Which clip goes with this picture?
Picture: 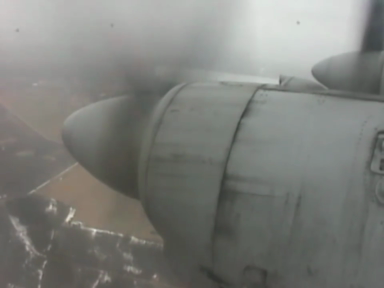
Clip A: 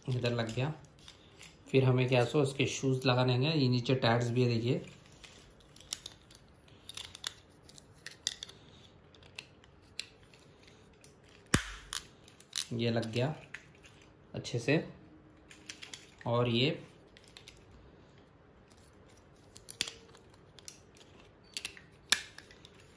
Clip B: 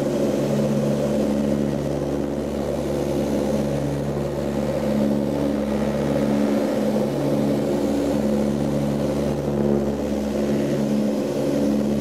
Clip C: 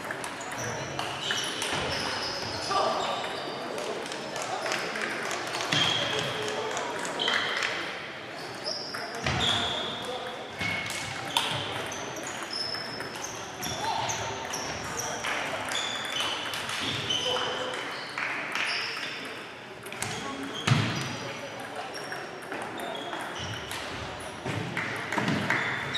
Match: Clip B